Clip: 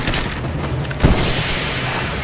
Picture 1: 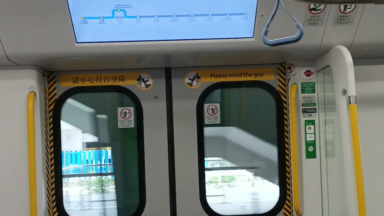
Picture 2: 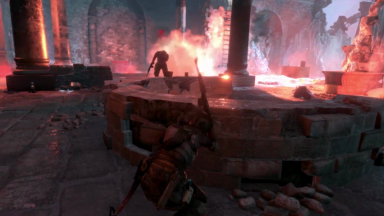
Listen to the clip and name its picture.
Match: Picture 2